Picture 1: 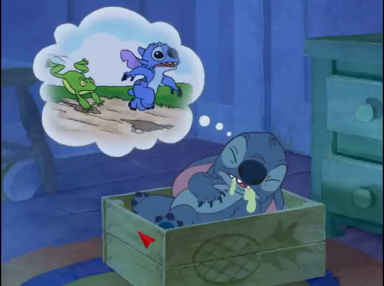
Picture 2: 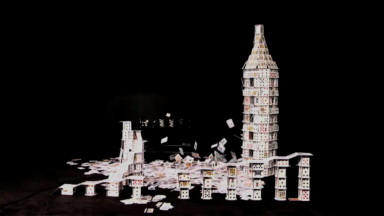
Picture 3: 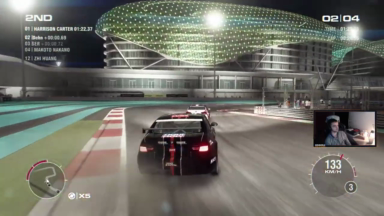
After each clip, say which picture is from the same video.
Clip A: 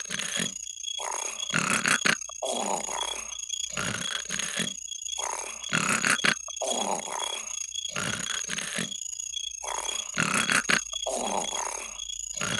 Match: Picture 1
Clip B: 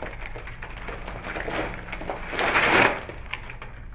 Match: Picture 2